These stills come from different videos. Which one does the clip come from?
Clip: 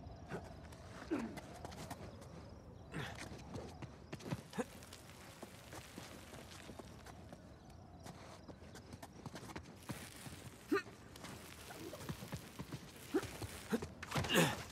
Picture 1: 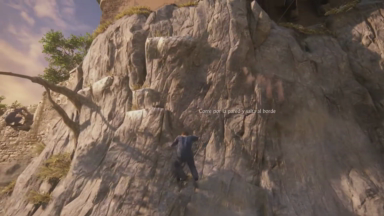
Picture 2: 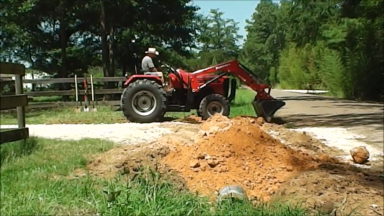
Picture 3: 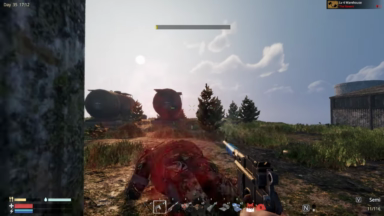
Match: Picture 1